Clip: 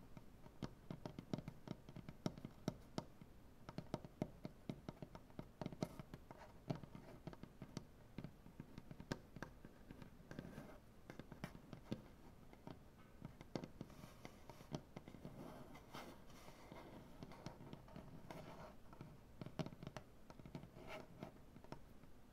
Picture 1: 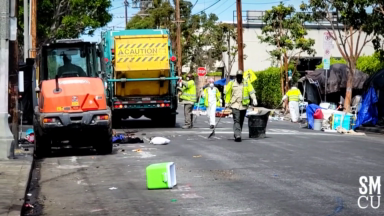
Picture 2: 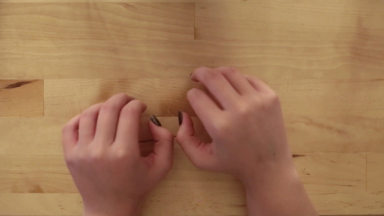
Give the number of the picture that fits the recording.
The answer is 2